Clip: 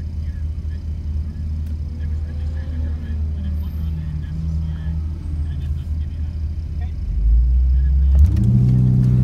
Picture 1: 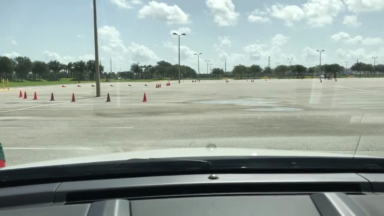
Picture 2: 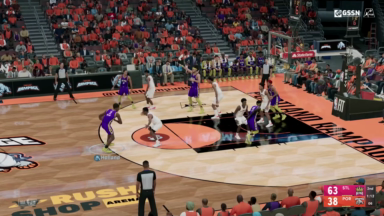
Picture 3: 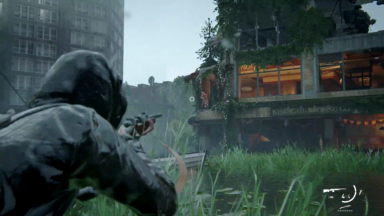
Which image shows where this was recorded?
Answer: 1